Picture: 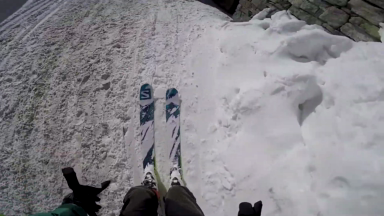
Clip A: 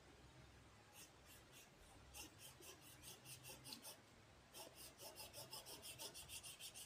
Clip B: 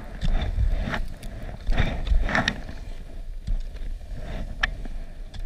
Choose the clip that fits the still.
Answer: B